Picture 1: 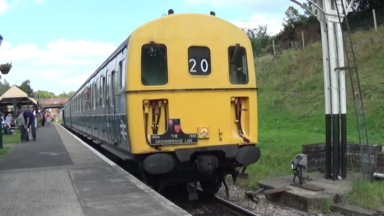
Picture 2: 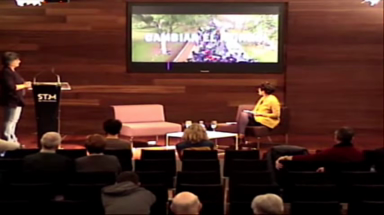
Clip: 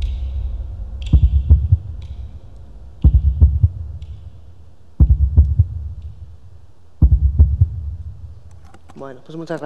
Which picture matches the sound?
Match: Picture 2